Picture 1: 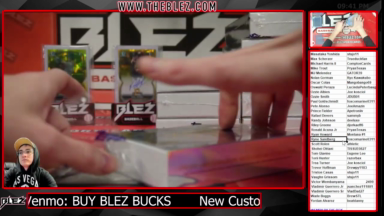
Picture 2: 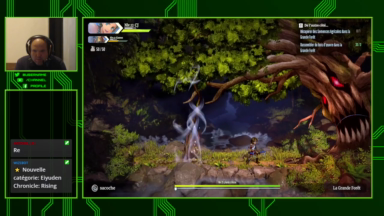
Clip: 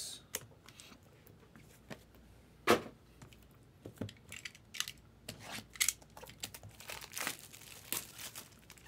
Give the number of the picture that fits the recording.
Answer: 1